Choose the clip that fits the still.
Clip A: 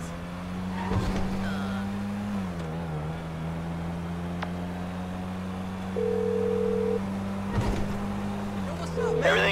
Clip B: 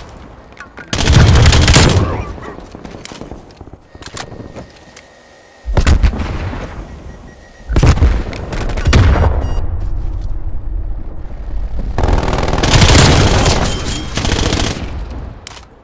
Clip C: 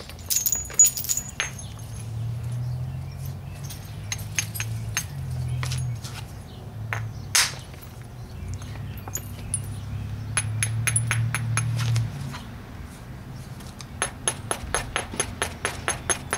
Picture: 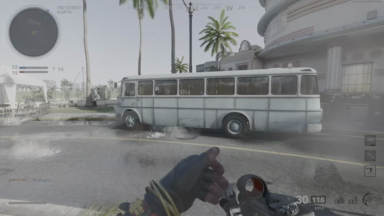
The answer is B